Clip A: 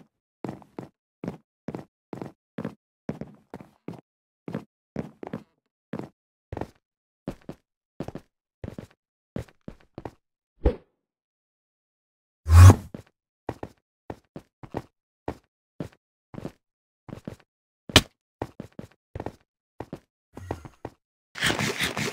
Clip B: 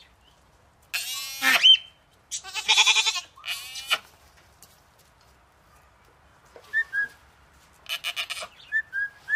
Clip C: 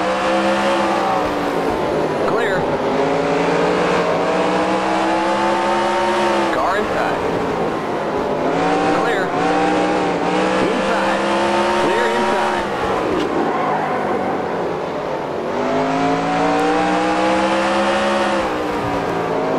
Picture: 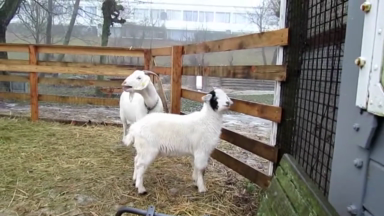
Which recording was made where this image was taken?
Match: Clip B